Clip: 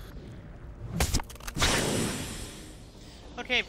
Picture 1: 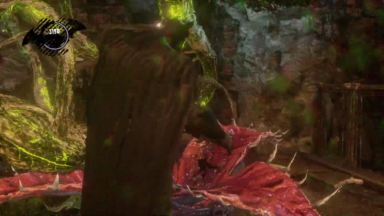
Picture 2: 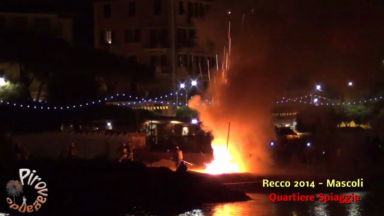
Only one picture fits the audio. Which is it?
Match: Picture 1